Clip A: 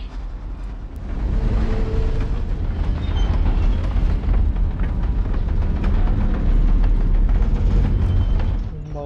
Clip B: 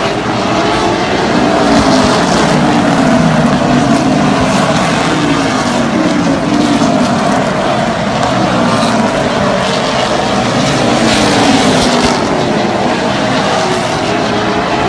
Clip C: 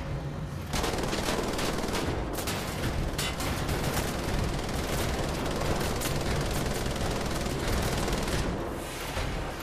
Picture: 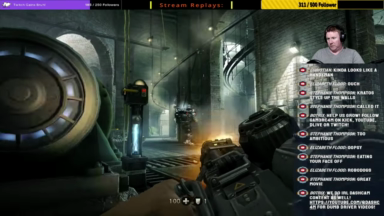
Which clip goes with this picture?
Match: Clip C